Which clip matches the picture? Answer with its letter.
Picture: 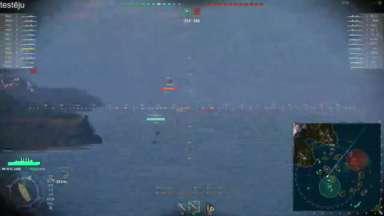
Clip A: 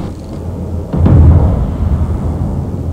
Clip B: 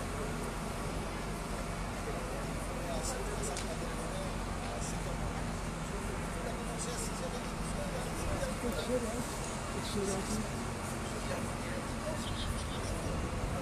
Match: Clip A